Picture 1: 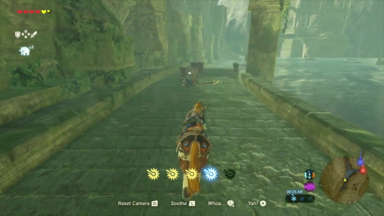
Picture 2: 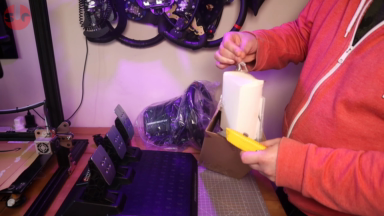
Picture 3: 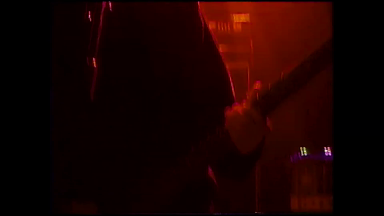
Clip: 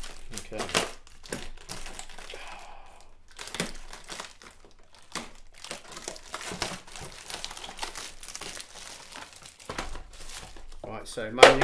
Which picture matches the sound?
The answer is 2